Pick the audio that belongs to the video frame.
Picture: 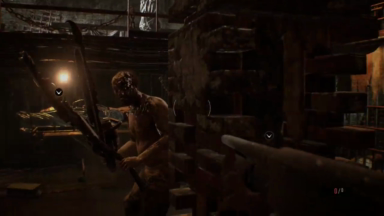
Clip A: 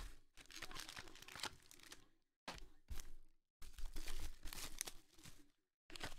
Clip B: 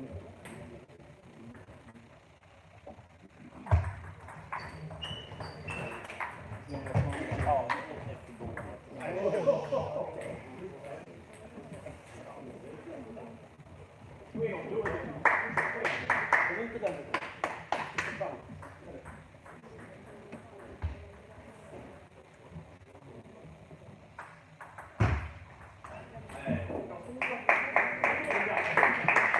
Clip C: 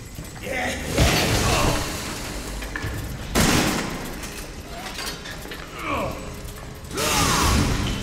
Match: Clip C